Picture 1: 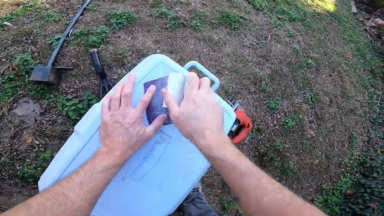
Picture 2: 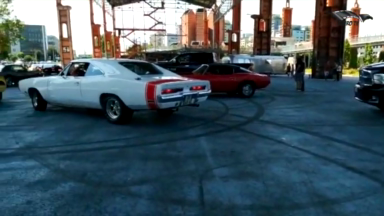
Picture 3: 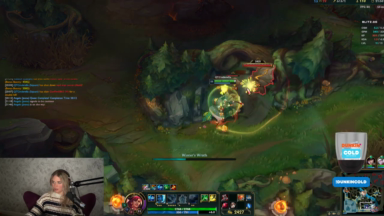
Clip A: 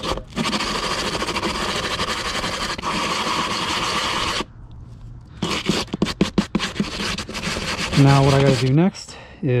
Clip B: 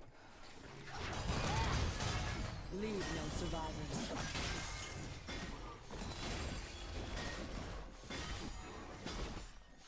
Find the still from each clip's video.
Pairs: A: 1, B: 3